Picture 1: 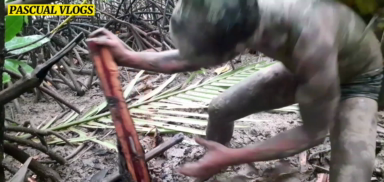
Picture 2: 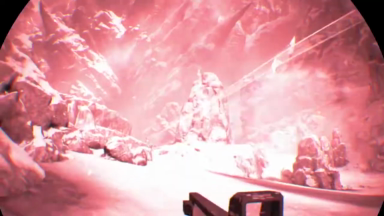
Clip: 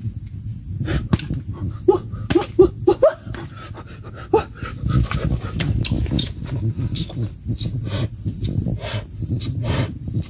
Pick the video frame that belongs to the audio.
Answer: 1